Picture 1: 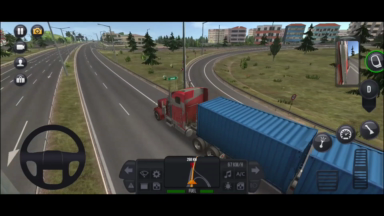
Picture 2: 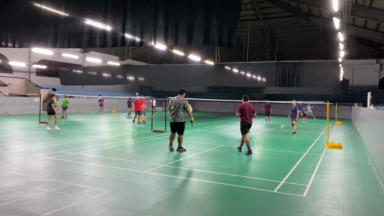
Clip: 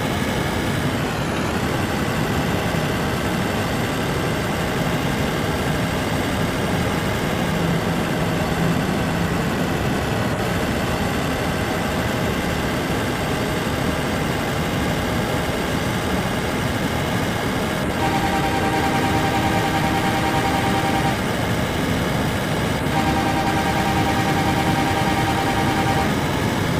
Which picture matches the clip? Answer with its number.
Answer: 1